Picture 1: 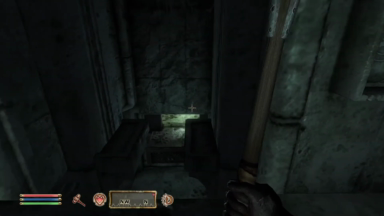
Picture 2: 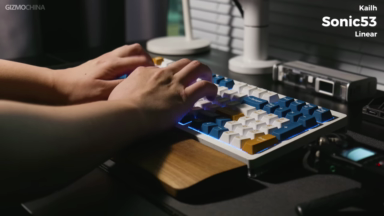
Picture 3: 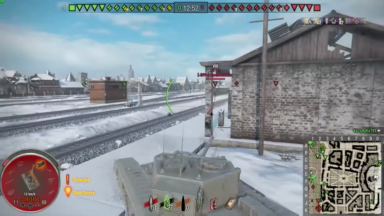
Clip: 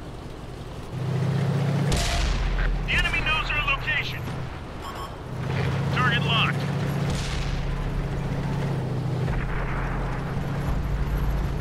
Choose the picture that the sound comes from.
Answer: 3